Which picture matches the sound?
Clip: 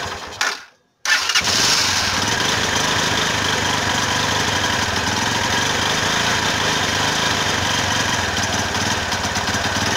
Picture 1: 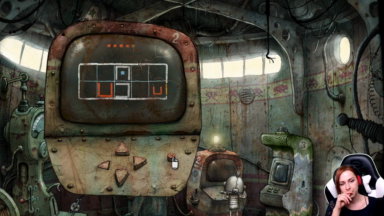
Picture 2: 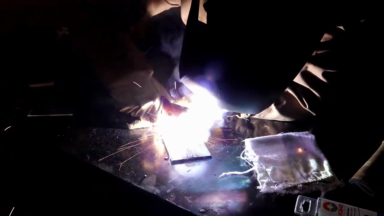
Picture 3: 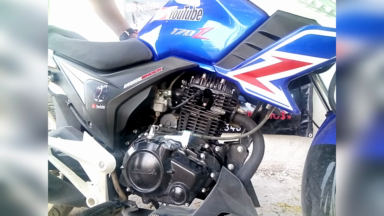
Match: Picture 3